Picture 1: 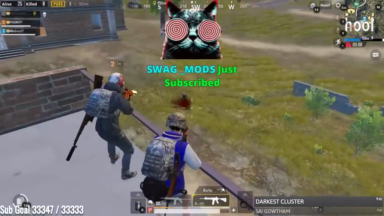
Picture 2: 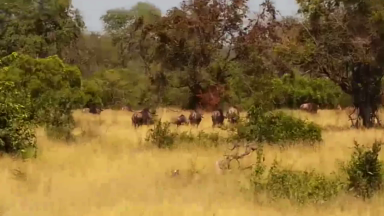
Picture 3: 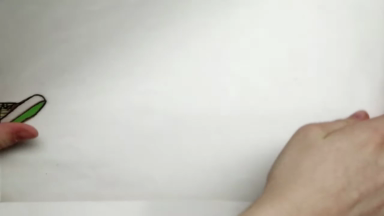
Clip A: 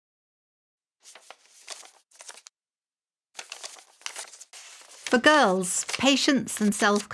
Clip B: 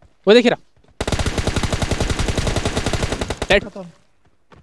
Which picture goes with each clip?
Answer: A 3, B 1